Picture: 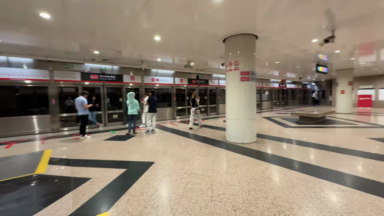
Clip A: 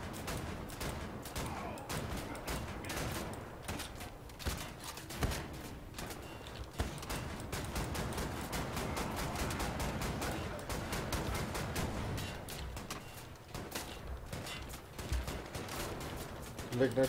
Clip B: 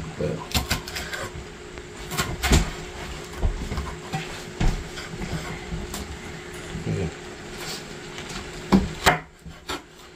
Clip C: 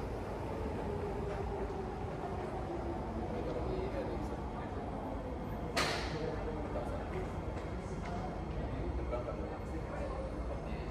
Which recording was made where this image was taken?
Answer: C